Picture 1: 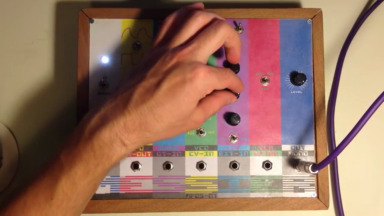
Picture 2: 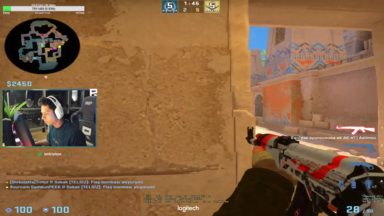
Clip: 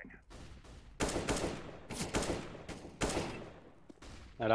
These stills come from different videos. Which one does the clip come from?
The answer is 2